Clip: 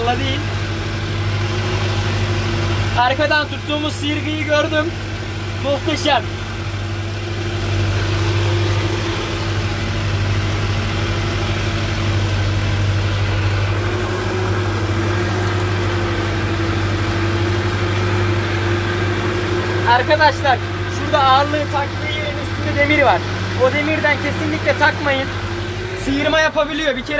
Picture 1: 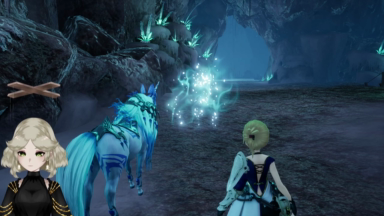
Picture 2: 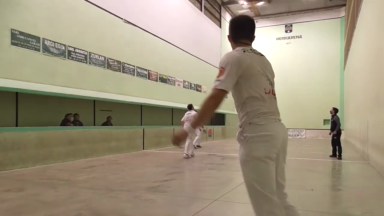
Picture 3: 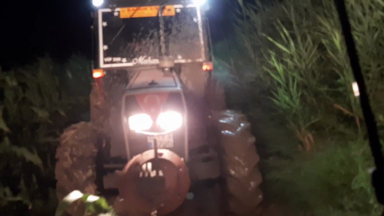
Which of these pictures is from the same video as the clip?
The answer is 3